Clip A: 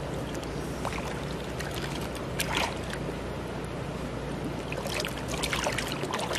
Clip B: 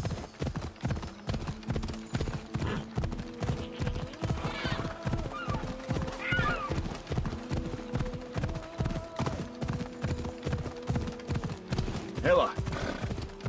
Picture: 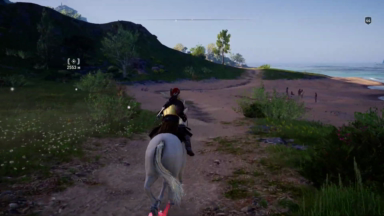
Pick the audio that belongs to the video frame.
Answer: B